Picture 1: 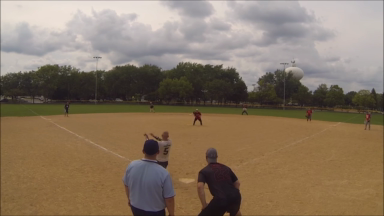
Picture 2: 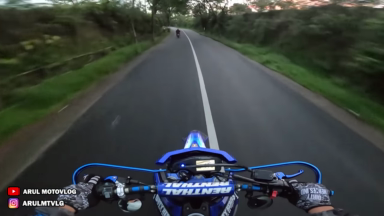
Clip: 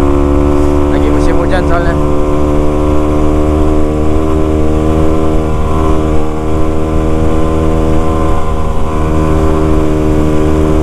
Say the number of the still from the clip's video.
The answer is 2